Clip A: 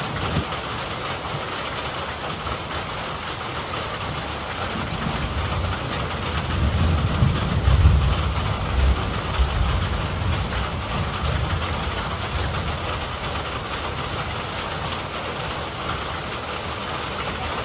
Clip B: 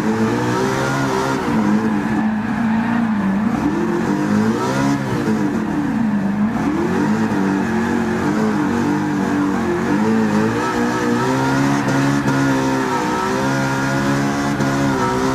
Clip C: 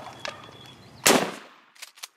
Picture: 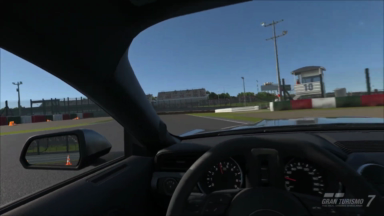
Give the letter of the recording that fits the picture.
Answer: B